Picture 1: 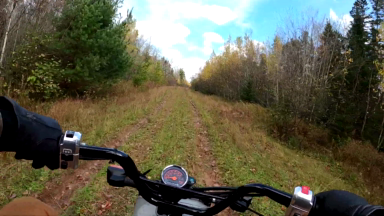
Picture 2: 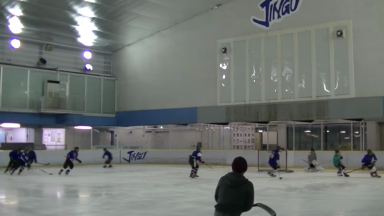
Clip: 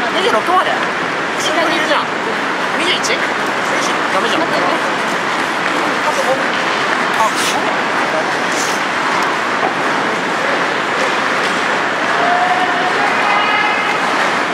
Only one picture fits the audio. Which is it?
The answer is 2